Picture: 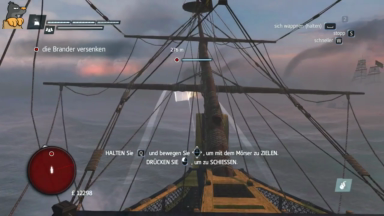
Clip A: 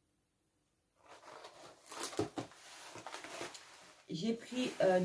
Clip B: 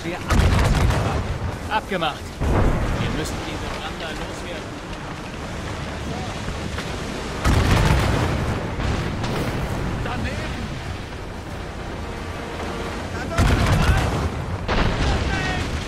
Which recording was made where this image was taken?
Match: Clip B